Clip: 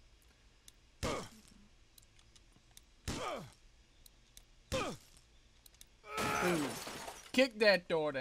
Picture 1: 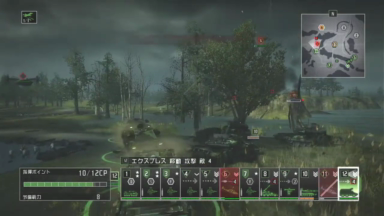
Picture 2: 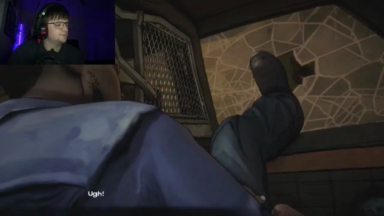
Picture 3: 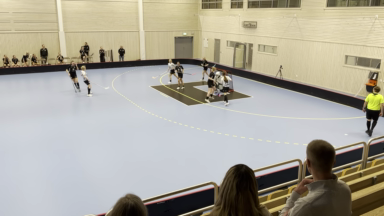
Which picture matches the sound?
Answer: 2